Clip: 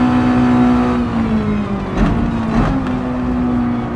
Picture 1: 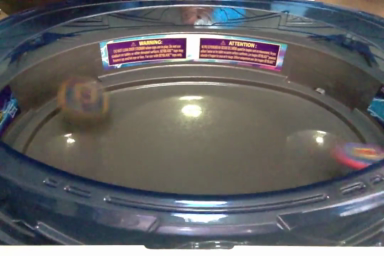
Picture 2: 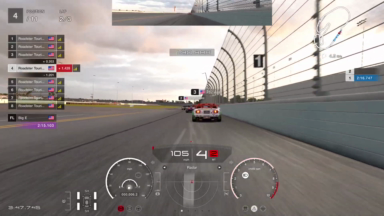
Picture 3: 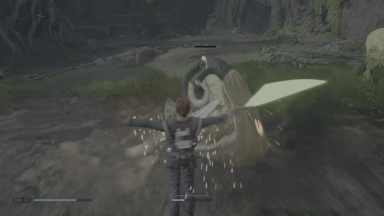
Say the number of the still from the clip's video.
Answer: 2